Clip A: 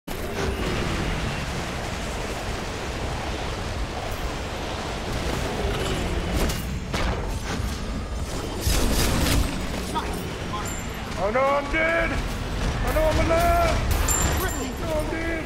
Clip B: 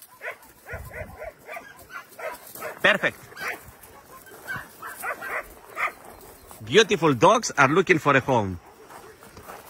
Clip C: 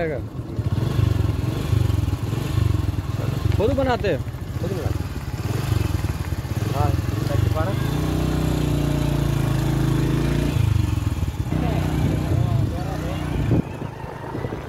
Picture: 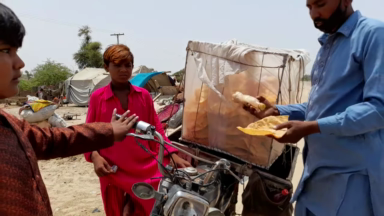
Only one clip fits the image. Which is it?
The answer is C